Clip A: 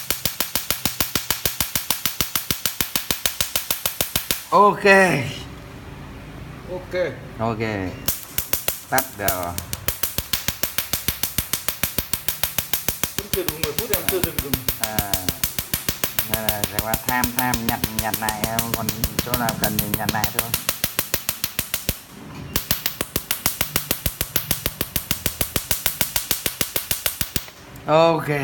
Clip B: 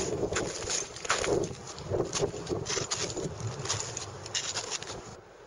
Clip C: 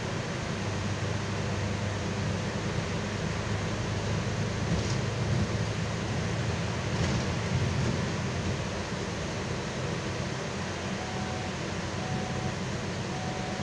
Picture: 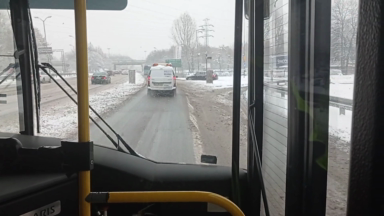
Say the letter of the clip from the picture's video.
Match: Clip C